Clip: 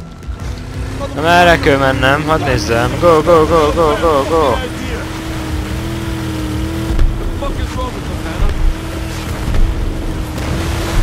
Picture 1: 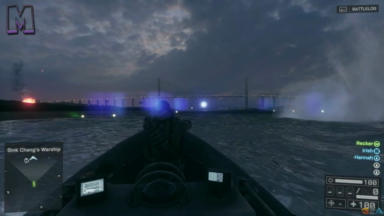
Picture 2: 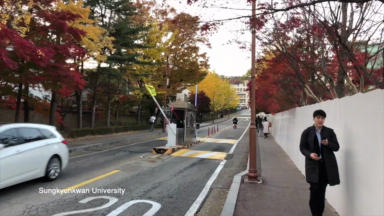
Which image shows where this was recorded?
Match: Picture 1